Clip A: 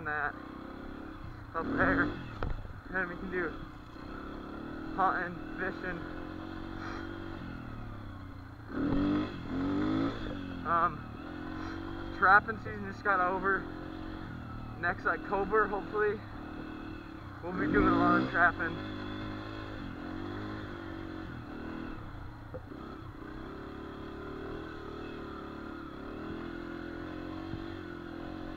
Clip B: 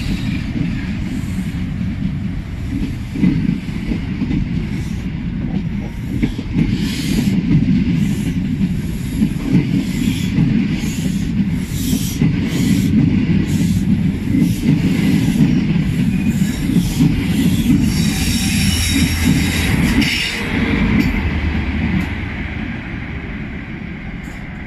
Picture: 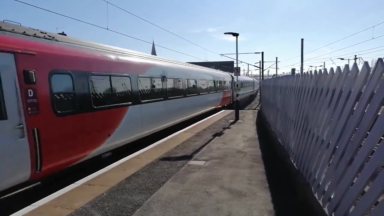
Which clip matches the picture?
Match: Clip B